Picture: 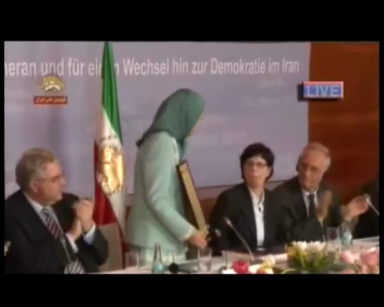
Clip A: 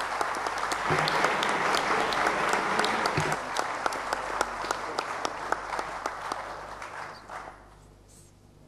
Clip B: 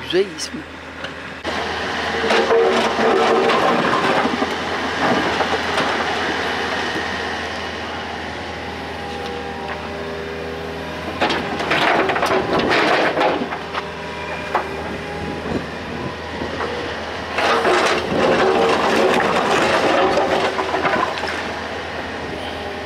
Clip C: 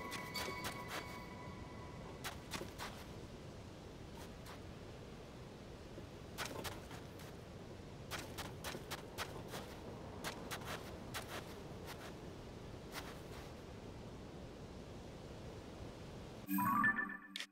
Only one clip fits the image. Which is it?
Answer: A